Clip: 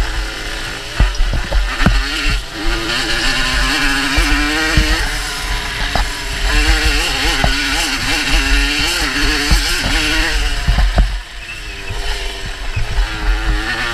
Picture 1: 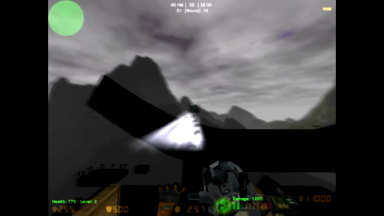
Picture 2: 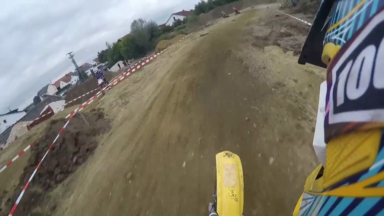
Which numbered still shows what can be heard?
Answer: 2